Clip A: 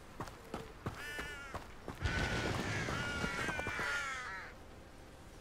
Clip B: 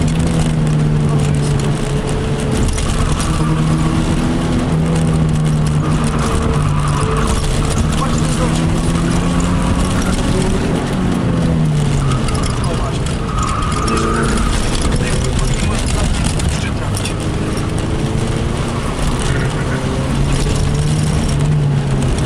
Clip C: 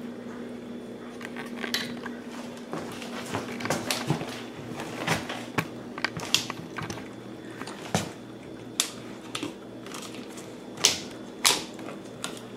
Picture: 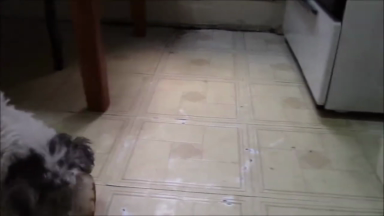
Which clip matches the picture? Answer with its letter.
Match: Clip C